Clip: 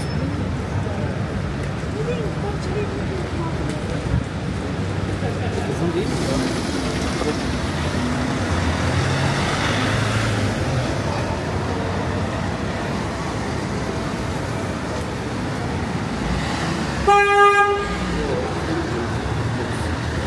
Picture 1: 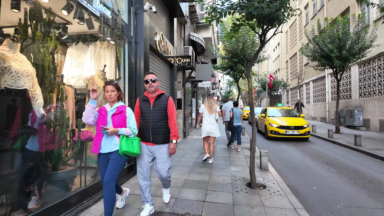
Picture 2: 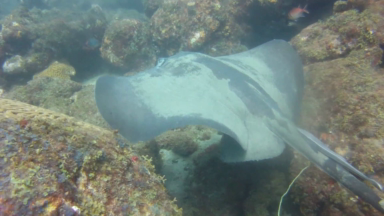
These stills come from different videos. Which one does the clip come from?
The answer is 1